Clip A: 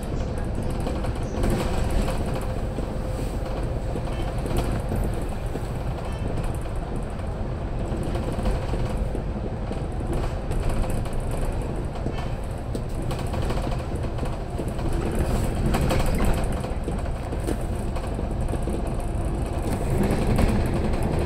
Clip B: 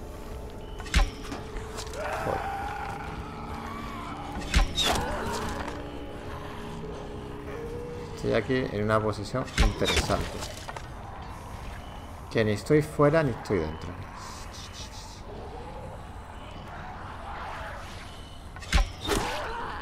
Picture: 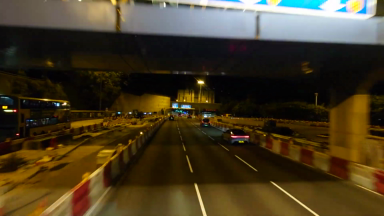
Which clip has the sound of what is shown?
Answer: A